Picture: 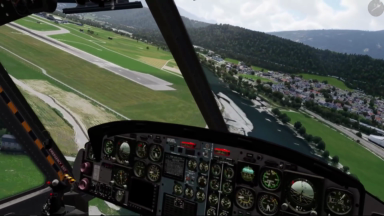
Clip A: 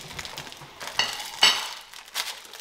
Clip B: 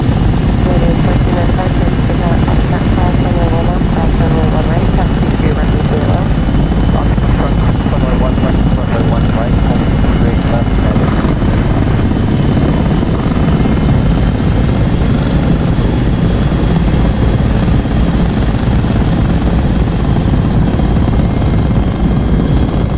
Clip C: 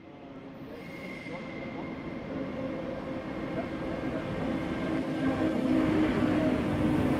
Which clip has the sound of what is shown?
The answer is B